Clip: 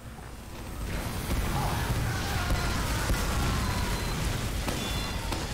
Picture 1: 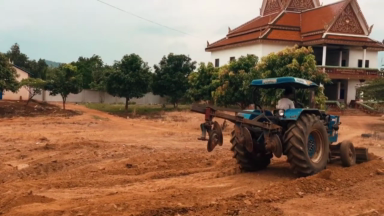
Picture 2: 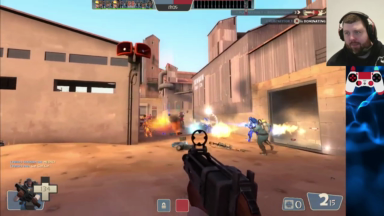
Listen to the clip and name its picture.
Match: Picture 2